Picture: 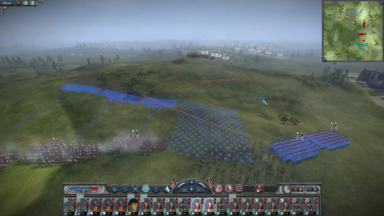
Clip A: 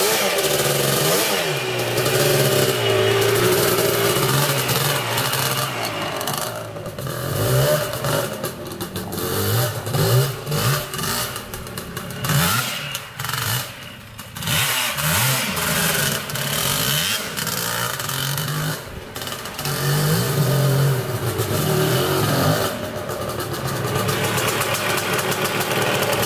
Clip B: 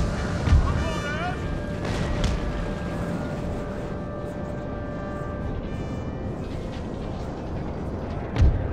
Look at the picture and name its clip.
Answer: B